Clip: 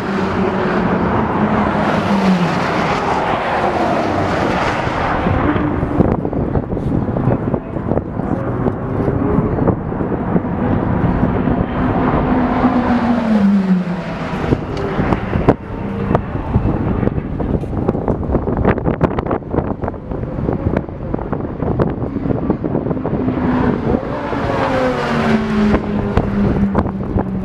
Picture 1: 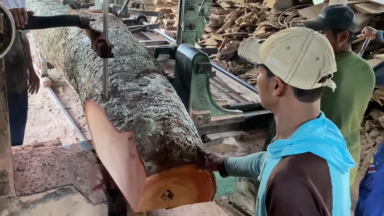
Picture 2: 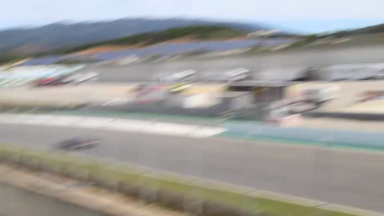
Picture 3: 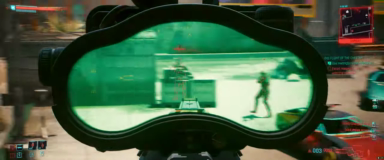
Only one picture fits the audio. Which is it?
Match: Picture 2